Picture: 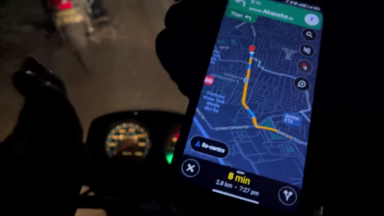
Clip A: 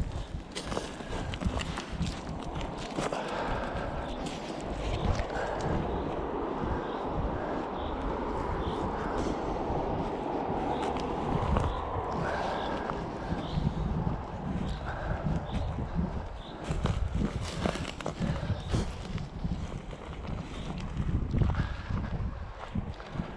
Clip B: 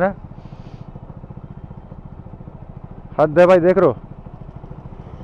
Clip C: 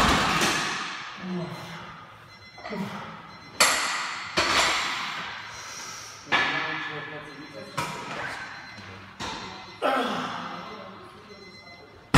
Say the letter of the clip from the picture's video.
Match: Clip B